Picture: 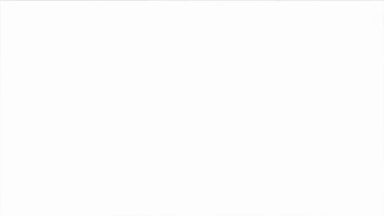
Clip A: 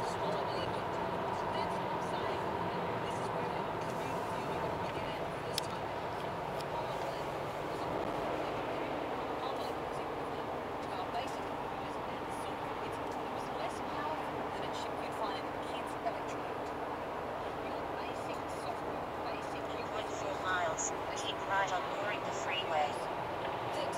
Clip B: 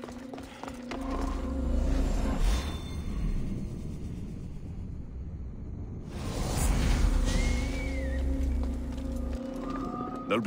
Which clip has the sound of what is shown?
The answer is B